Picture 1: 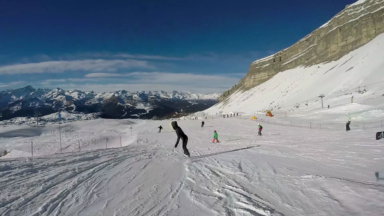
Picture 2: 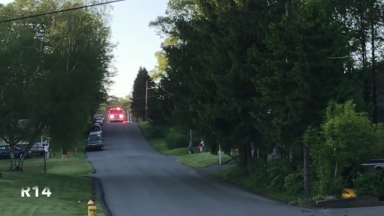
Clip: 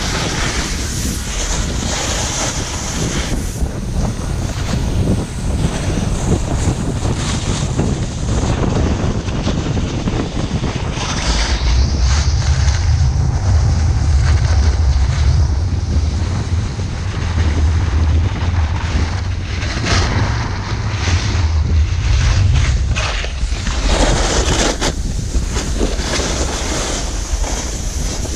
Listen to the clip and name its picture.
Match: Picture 1